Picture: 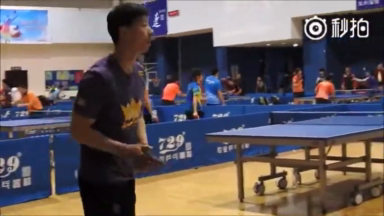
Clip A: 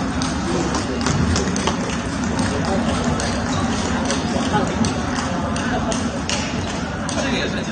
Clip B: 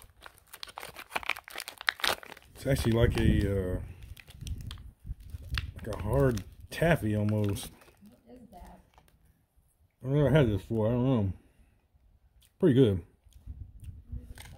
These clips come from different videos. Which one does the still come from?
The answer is A